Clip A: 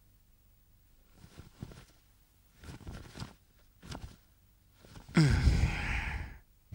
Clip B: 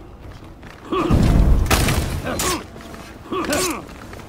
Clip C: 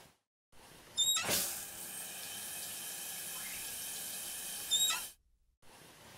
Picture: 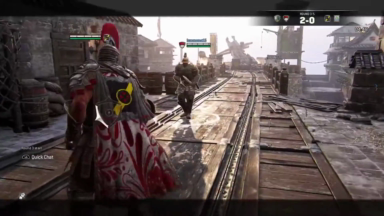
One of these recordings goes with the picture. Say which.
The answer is B